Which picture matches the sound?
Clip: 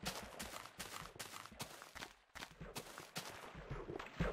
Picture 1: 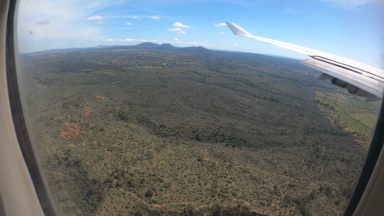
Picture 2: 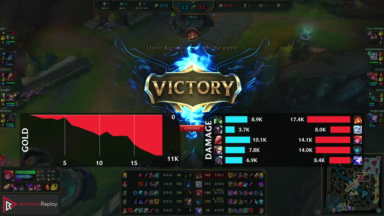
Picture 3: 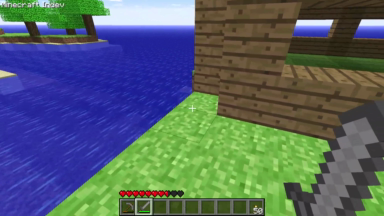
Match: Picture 3